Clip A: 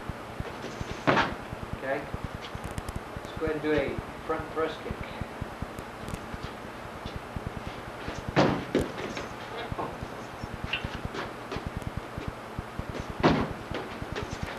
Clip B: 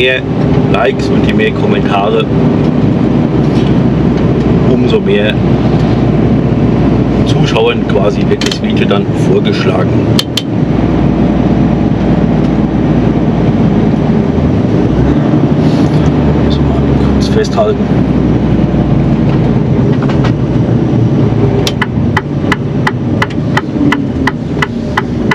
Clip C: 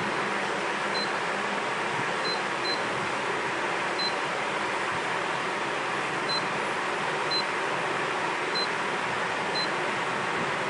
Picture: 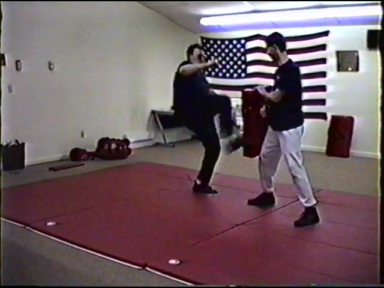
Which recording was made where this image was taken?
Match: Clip A